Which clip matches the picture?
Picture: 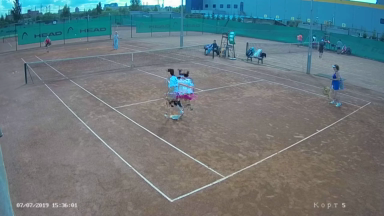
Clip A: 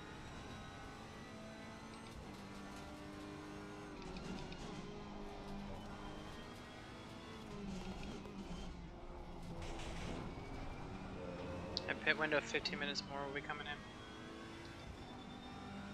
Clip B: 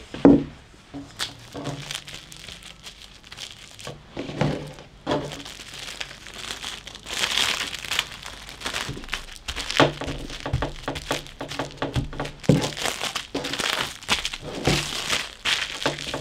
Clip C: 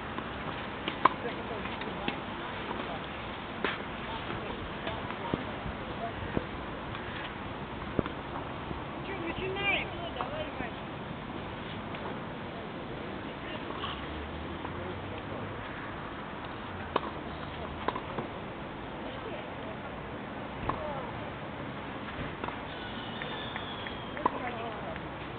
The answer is C